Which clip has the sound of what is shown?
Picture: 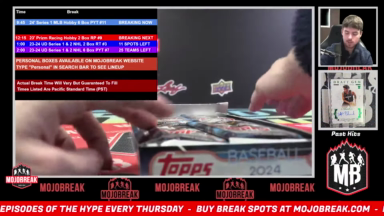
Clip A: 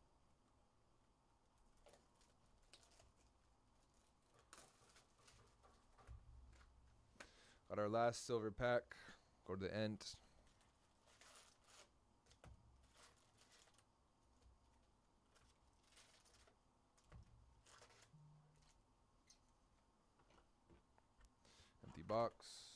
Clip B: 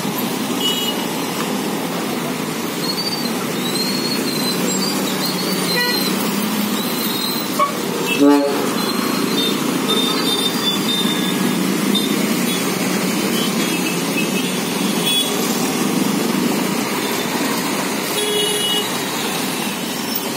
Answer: A